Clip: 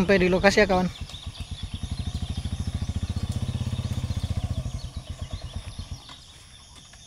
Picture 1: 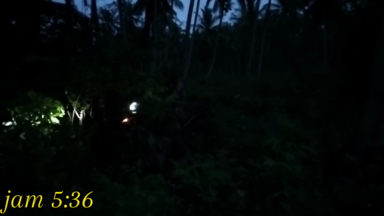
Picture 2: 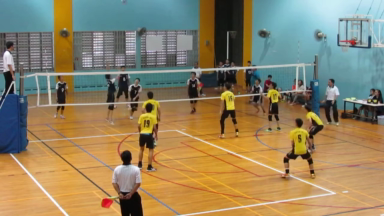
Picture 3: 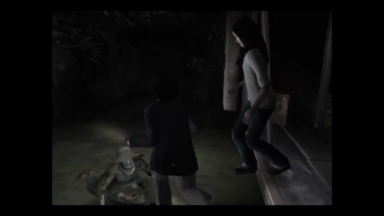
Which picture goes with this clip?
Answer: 1